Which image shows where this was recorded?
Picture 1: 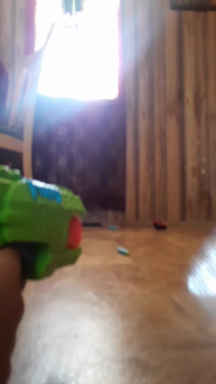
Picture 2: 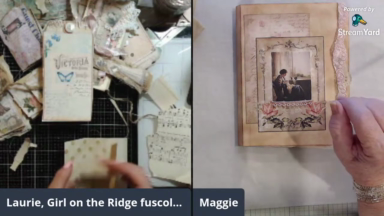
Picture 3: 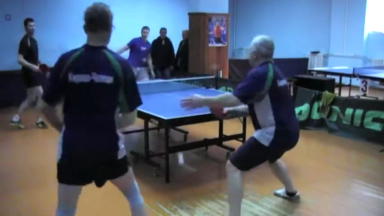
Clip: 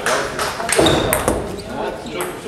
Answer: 3